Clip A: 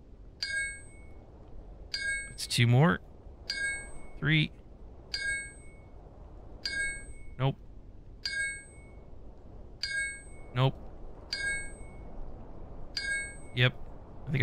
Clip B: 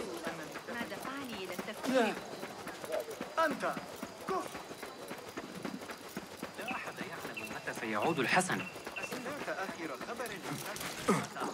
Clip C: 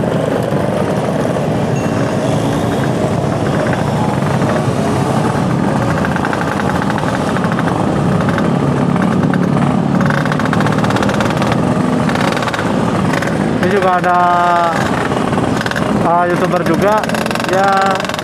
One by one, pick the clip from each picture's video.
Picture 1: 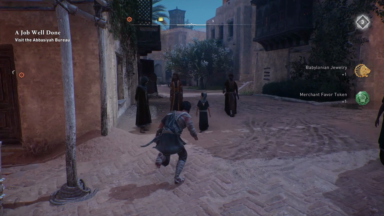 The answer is B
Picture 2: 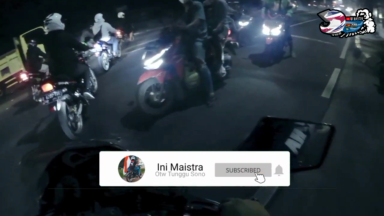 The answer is C